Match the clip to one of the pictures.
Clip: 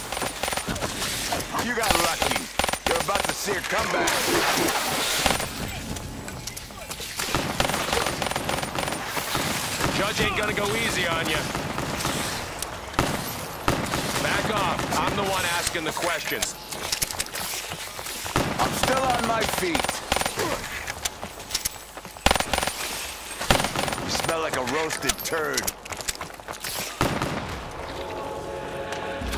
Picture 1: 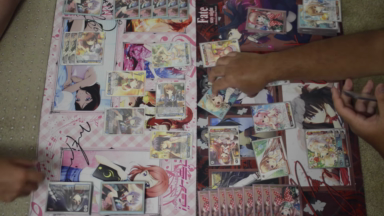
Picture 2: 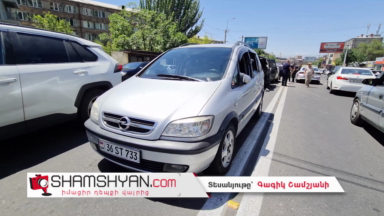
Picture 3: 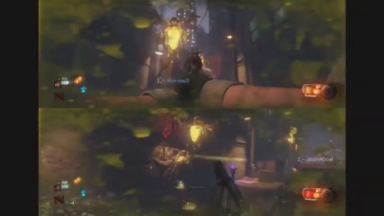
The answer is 3